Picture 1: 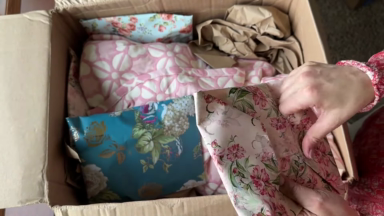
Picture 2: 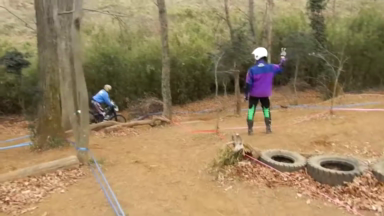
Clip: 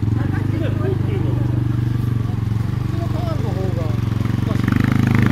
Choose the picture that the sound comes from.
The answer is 2